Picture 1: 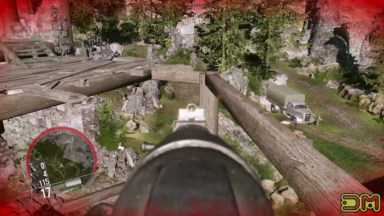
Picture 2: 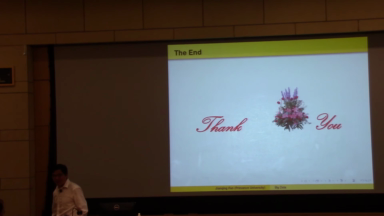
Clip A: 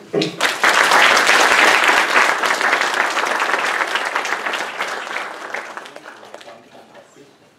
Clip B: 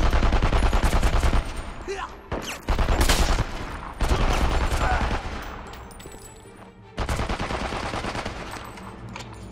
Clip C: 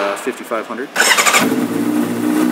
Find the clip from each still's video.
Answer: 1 B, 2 A